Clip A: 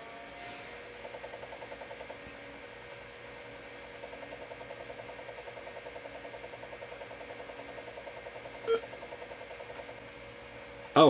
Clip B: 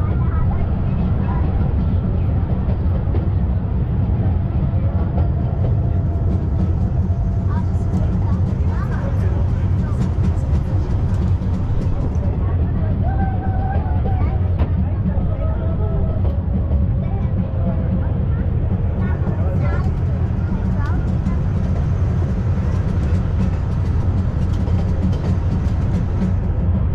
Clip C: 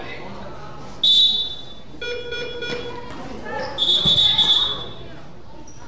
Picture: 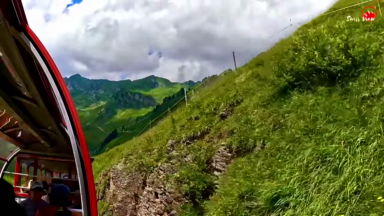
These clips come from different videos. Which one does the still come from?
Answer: B